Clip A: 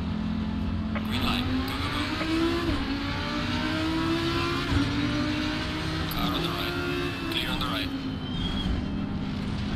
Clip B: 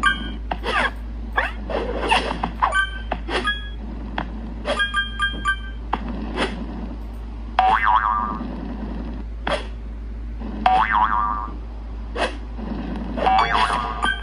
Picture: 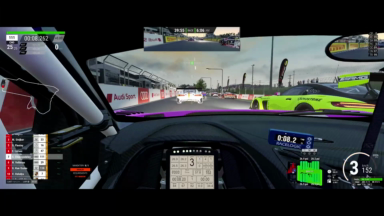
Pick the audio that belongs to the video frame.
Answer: A